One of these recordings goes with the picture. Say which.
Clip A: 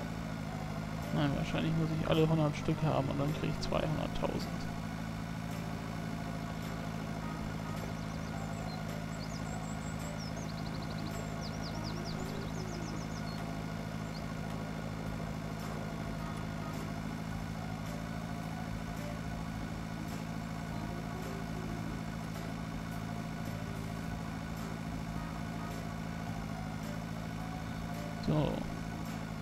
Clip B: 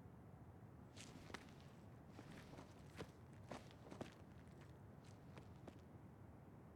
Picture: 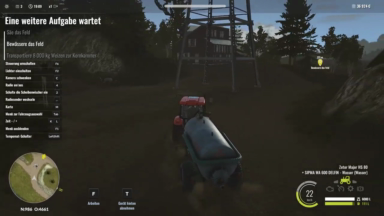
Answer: A